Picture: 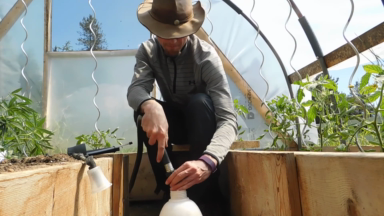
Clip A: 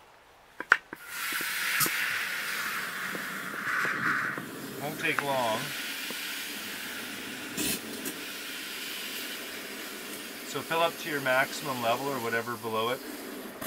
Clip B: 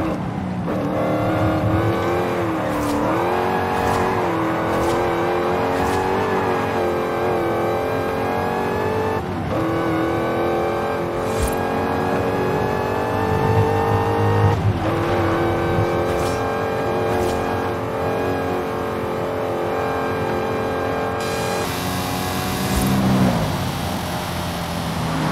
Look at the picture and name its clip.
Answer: A